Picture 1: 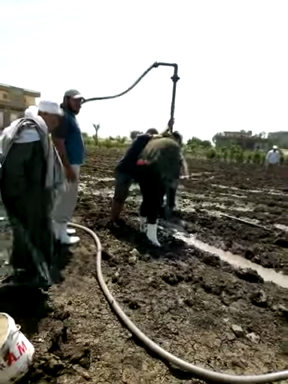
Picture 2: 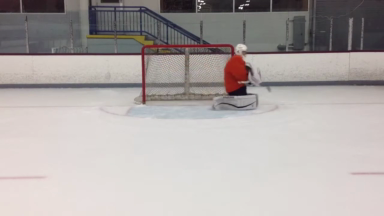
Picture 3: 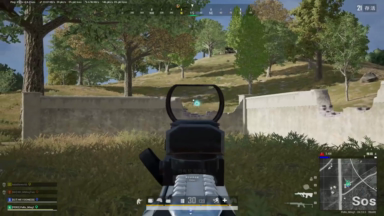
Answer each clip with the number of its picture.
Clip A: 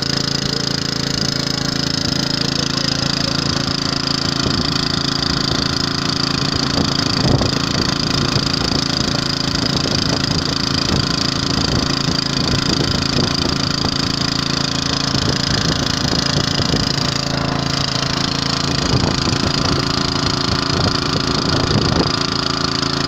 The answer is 1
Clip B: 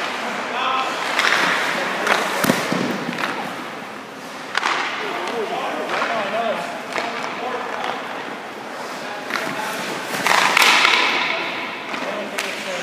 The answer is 2